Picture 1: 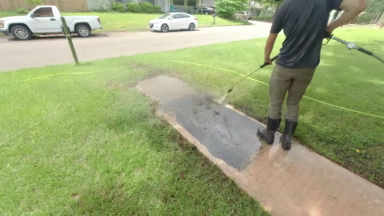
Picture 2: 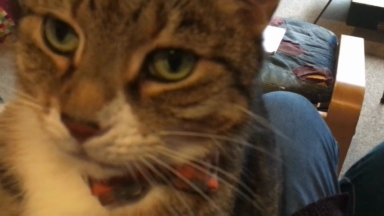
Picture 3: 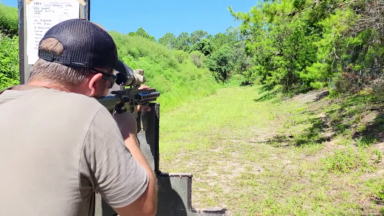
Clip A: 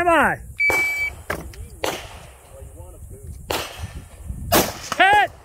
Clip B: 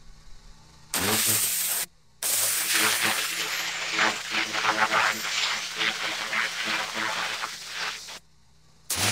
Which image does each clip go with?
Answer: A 3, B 1